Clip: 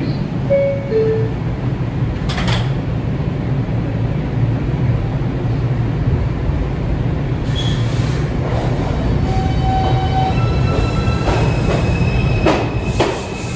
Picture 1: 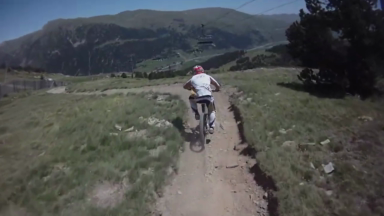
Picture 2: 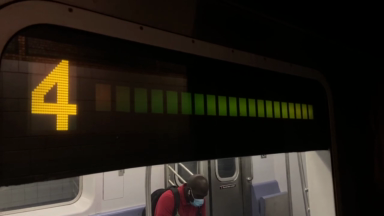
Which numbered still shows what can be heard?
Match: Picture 2